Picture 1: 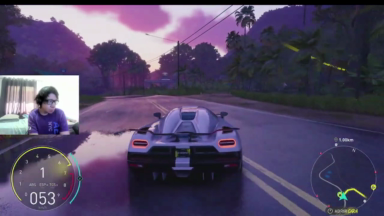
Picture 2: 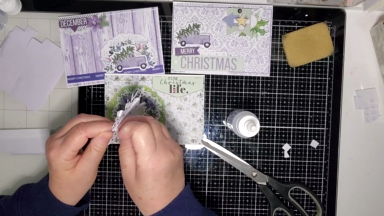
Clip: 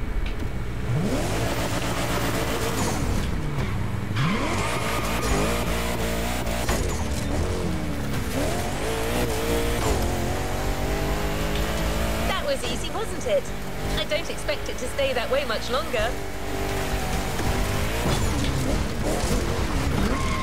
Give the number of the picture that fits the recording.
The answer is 1